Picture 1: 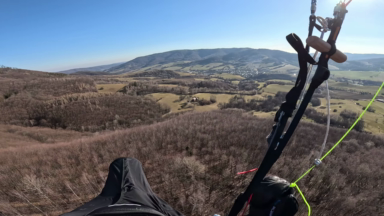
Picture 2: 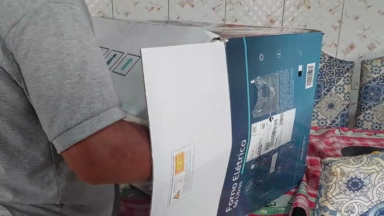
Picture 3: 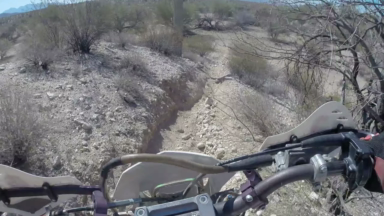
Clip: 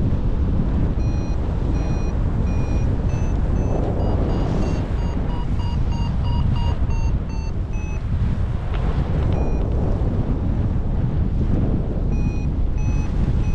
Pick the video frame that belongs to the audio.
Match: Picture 1